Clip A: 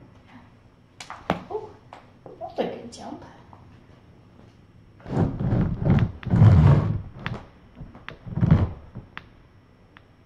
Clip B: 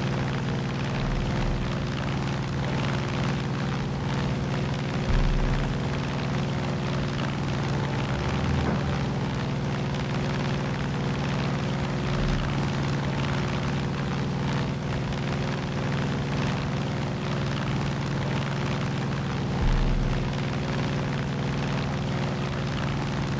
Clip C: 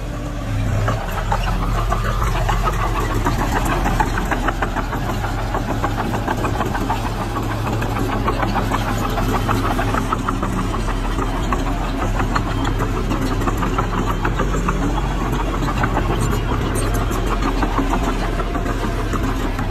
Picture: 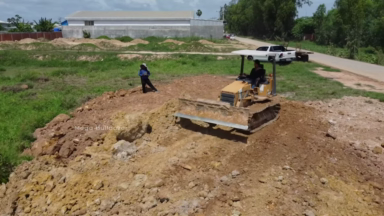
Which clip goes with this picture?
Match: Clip C